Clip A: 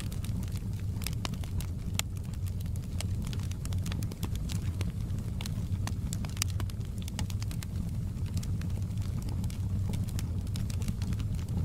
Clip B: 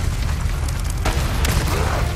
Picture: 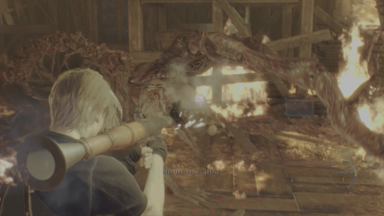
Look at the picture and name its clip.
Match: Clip B